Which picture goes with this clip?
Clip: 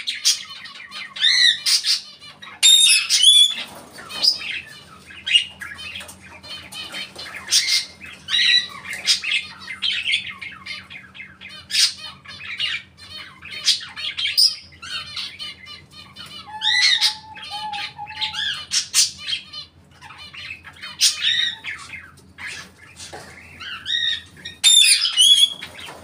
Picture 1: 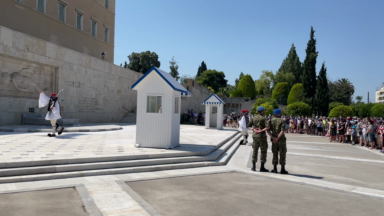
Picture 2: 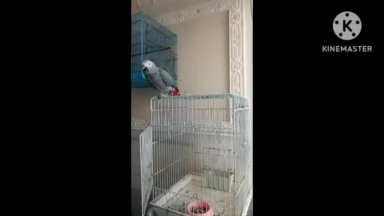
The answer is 2